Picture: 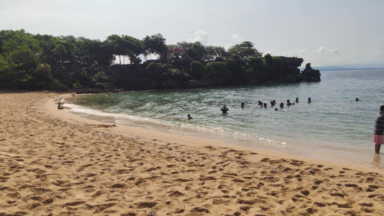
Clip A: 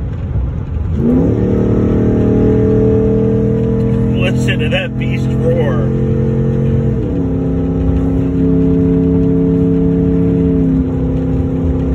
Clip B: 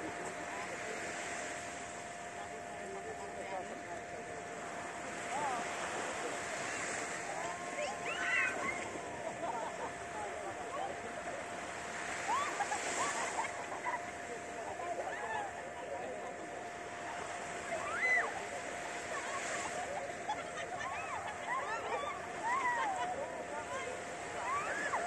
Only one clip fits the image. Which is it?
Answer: B